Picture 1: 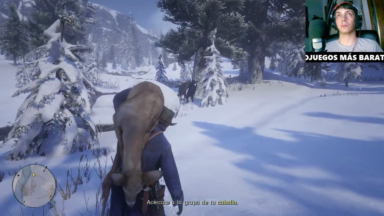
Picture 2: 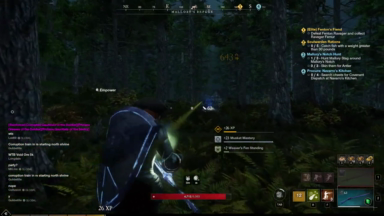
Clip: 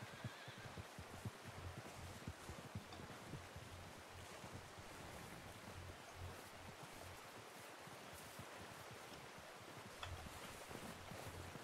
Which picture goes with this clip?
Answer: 1